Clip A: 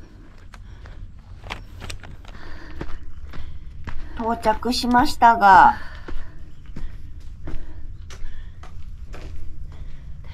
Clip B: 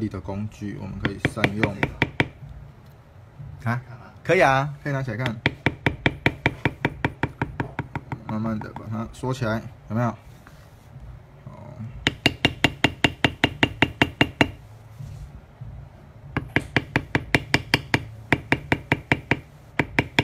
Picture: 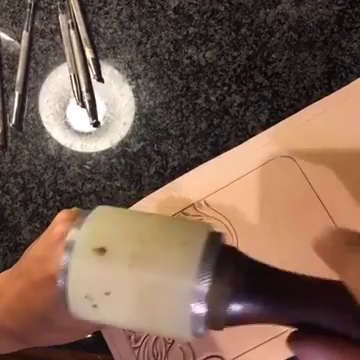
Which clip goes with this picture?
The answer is B